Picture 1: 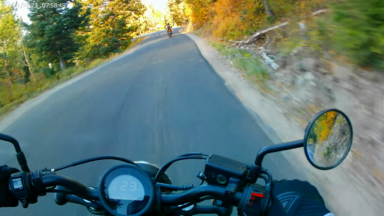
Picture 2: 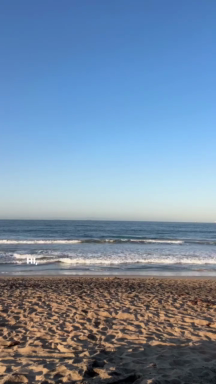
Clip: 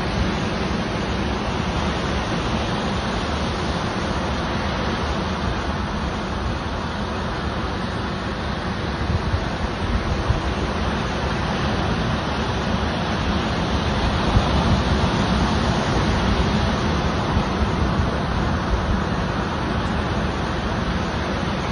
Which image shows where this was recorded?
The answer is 2